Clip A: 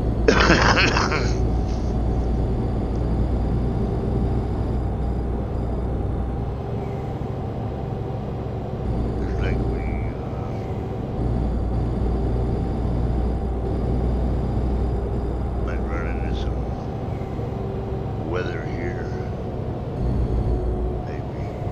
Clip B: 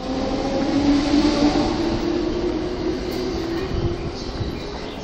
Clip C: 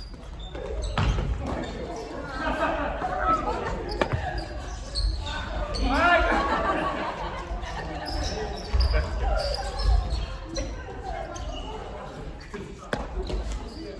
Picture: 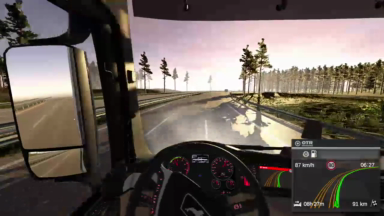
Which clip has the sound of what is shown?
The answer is A